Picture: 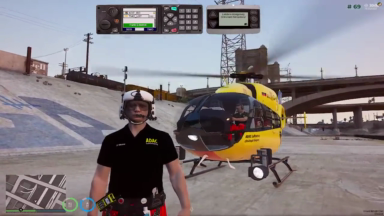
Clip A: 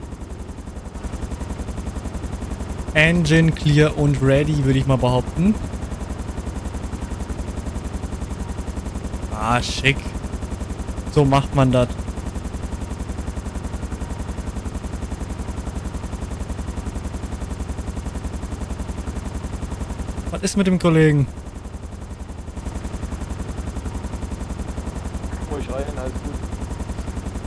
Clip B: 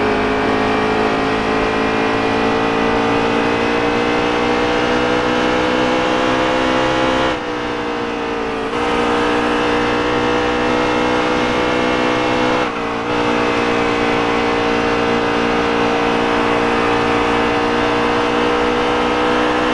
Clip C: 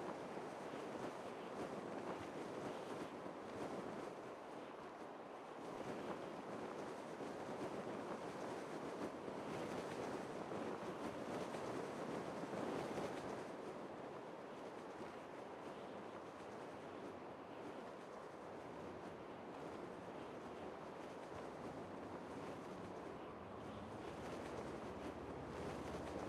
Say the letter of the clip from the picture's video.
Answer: A